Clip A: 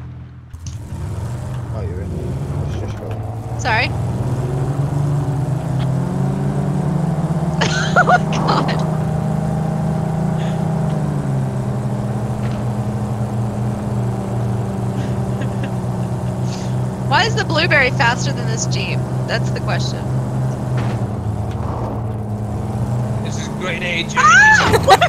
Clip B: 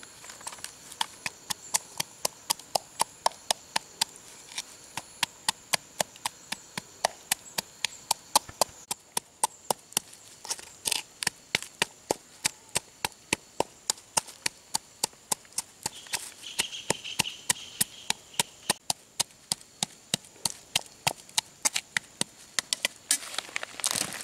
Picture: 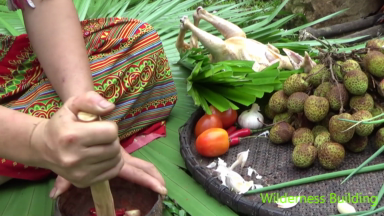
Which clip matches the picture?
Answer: B